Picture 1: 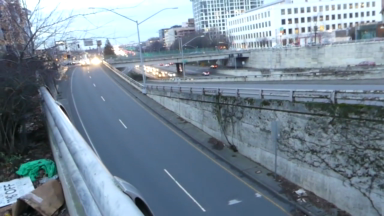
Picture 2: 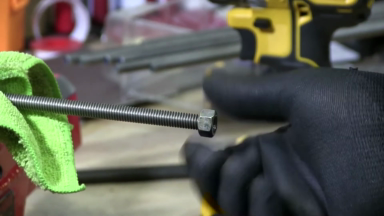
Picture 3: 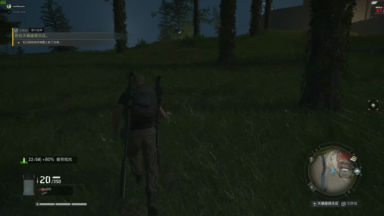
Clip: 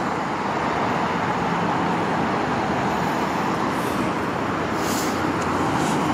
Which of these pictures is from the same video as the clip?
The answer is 1